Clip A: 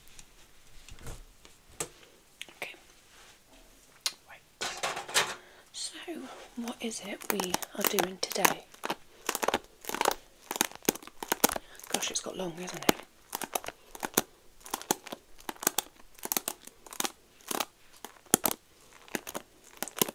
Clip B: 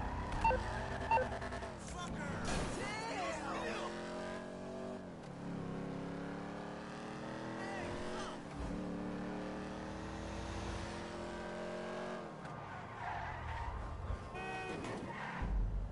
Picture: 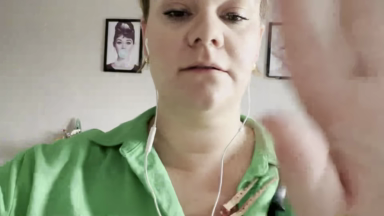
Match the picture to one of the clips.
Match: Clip A